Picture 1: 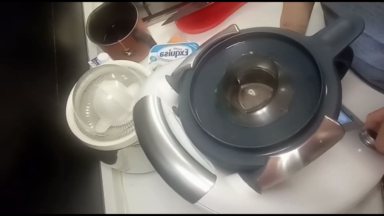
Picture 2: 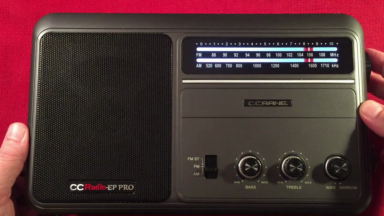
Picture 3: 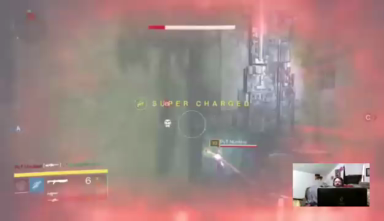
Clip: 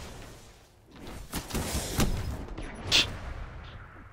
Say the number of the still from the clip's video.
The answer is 3